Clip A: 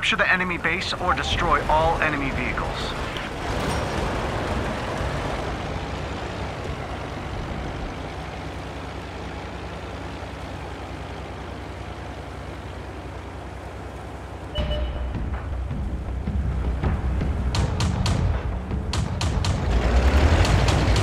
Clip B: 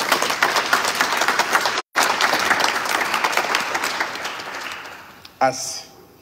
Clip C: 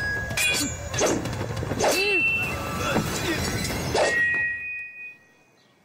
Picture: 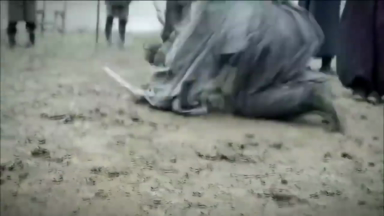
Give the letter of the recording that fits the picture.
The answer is C